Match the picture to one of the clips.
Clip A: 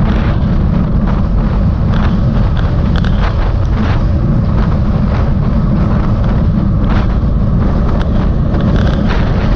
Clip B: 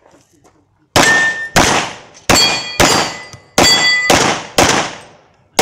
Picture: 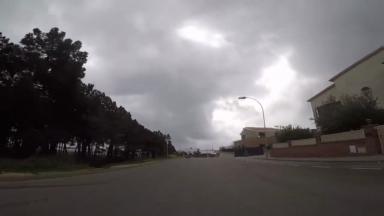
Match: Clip A